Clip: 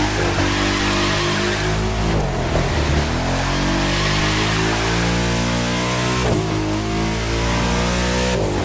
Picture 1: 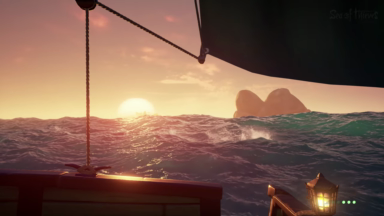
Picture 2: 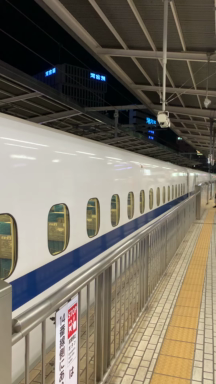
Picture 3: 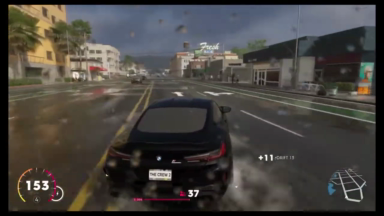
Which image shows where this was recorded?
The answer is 3